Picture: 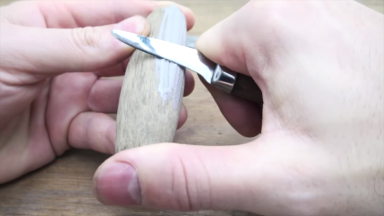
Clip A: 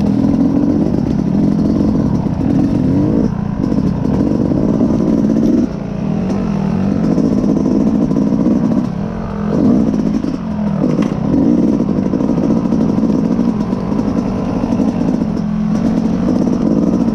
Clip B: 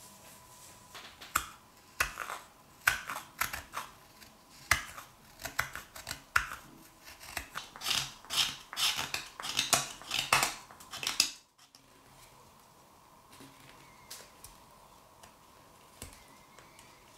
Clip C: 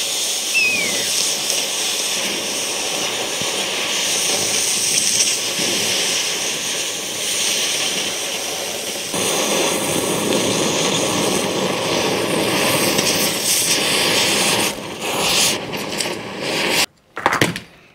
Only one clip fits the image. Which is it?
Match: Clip B